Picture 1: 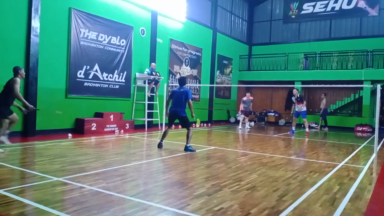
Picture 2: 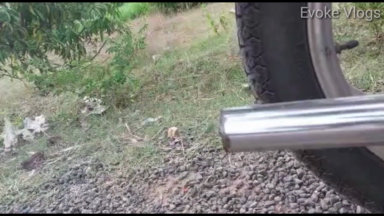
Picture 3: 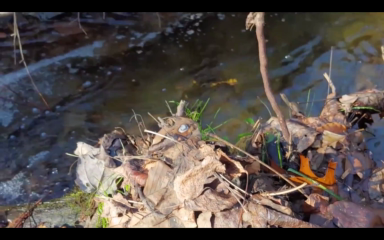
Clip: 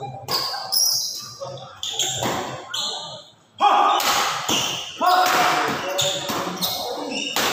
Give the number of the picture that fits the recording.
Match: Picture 1